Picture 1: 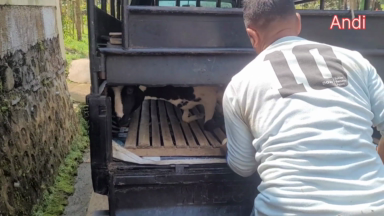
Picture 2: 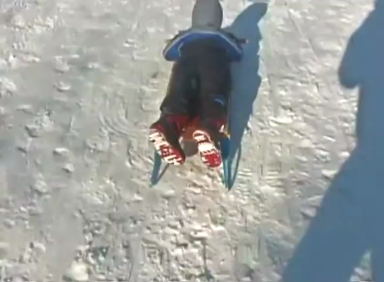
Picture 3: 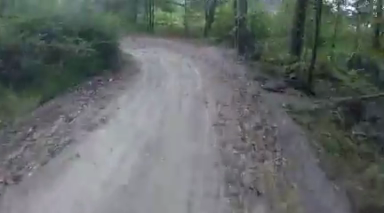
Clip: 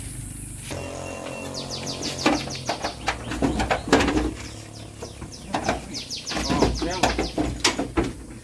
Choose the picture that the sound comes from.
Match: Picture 1